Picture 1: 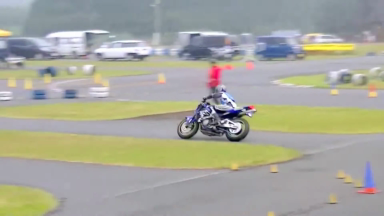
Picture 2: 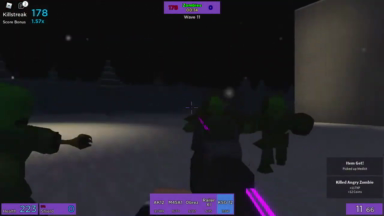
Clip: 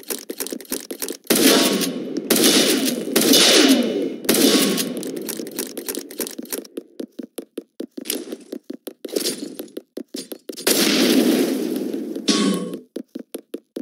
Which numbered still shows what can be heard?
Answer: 2